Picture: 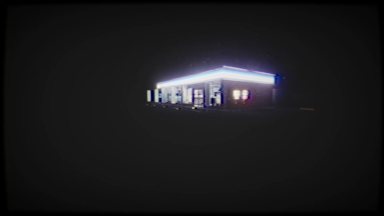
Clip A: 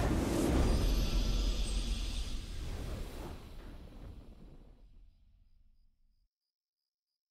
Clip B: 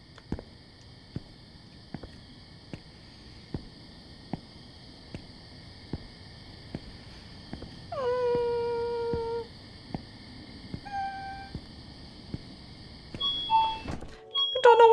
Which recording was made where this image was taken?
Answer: B